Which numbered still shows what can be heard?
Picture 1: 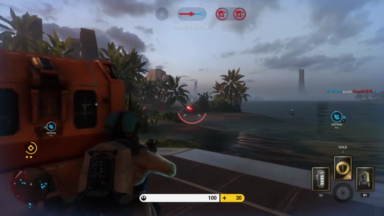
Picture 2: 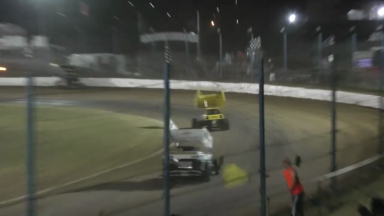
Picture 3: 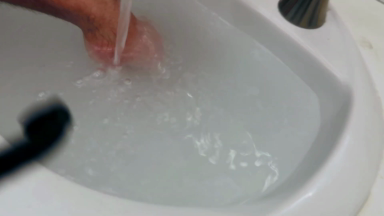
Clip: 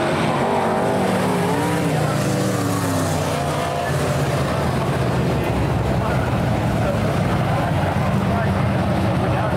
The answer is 2